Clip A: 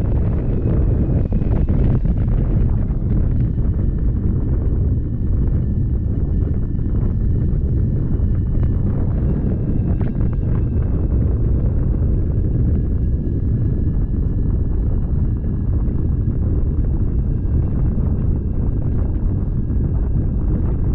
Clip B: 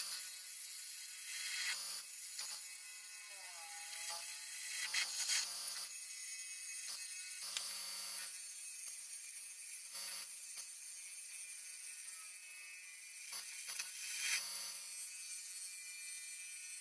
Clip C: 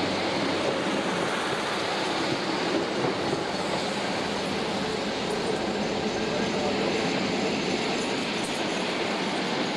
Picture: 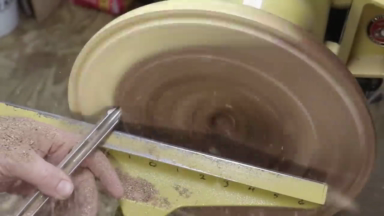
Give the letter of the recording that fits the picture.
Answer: B